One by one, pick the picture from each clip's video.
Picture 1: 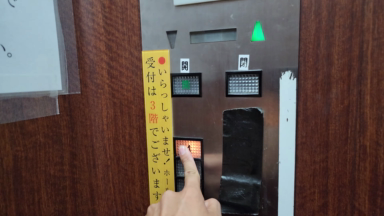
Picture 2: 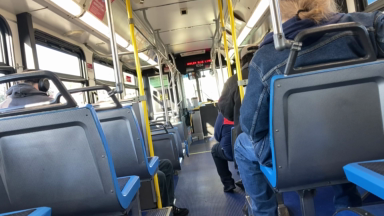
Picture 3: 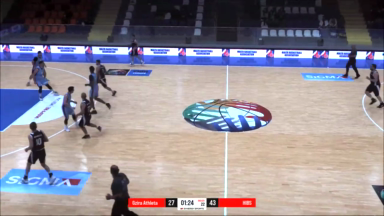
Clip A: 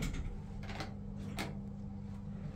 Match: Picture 1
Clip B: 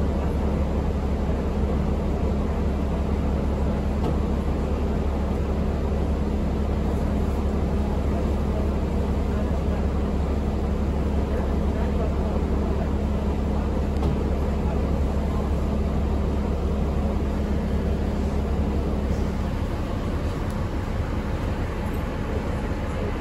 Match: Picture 2